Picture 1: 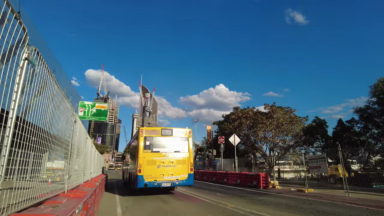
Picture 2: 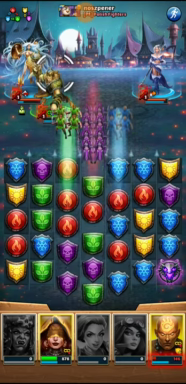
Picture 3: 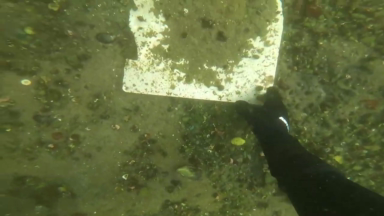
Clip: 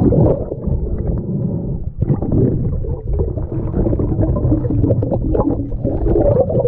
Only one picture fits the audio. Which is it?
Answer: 3